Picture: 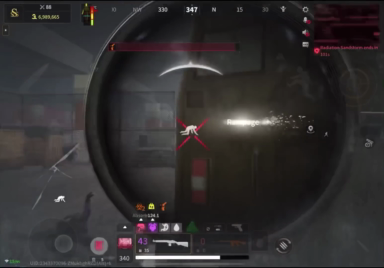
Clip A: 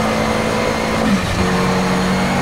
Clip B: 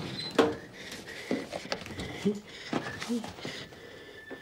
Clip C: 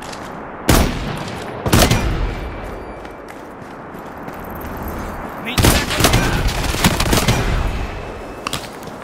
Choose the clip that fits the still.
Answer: C